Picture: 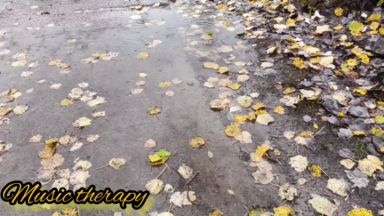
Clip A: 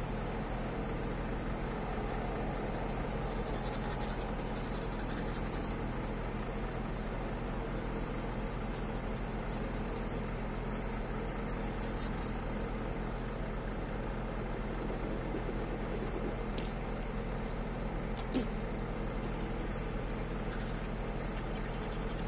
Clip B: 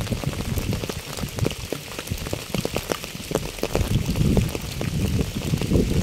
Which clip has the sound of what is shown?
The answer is B